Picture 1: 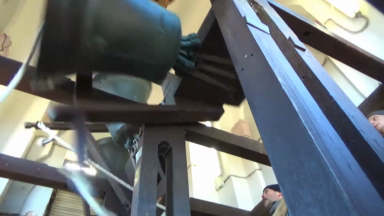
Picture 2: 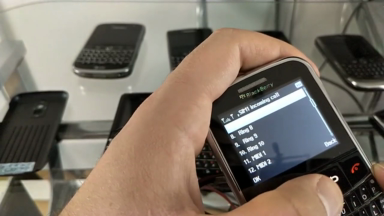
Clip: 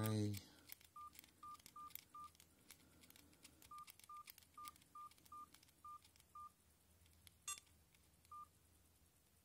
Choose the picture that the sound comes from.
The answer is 2